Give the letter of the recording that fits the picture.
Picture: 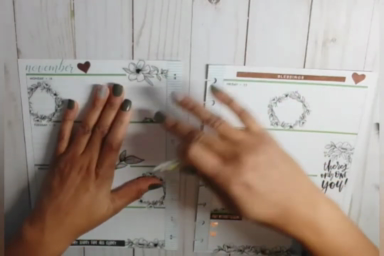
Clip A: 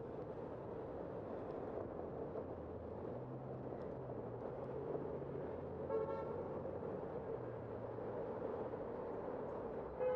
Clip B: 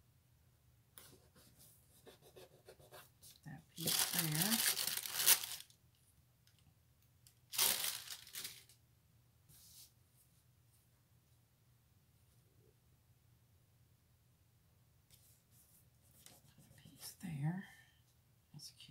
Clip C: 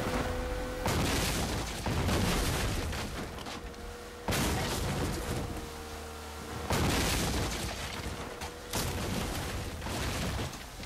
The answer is B